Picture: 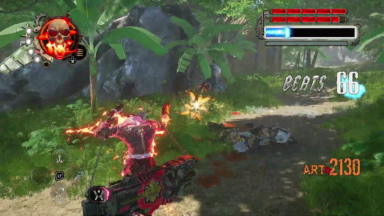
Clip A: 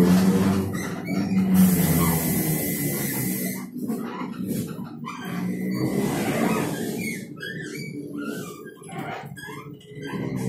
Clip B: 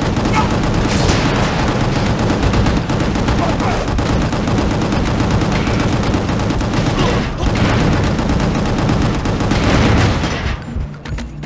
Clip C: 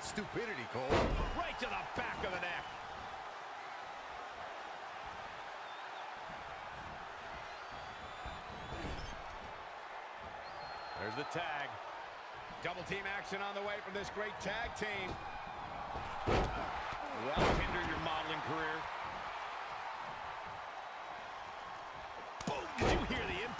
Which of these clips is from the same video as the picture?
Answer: B